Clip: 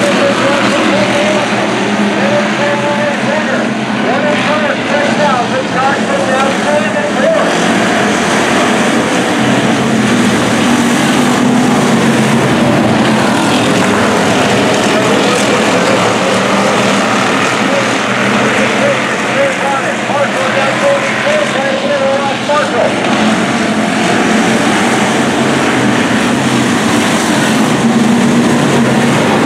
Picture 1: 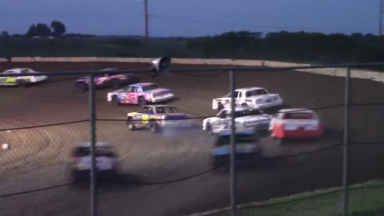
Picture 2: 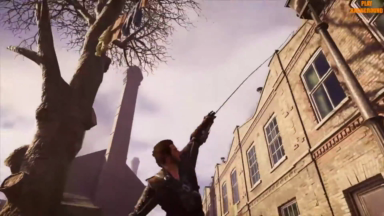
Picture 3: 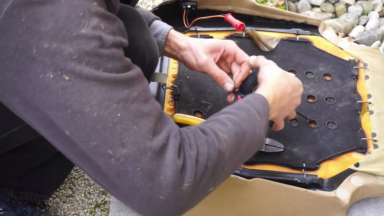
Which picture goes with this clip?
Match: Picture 1